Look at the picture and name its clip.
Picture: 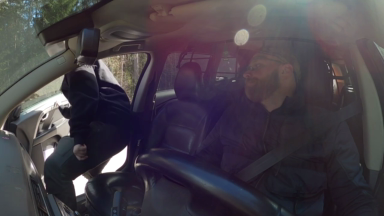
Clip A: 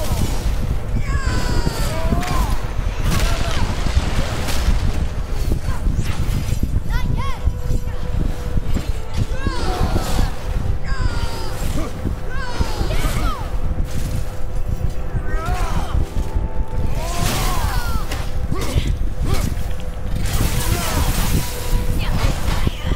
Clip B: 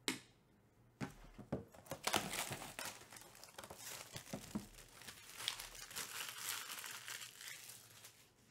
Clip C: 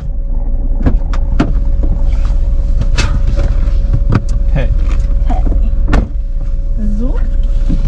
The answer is C